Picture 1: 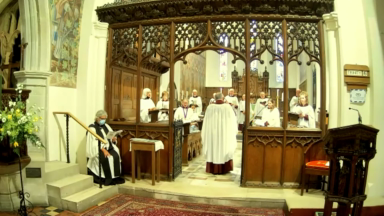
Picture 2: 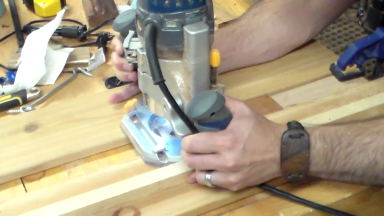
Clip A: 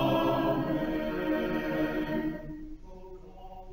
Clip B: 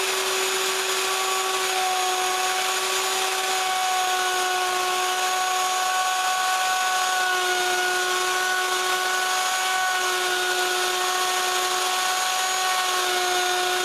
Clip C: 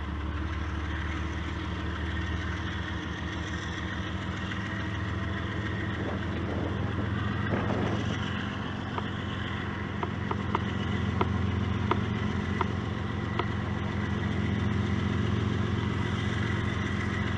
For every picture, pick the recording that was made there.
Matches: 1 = A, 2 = B